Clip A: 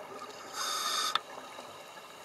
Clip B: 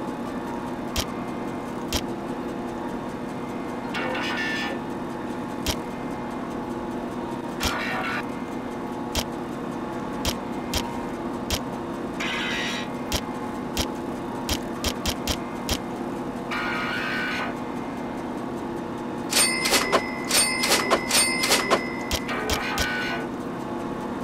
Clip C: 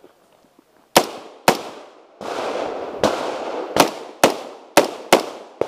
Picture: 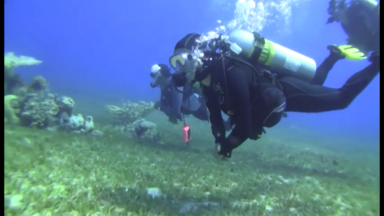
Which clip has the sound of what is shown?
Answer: A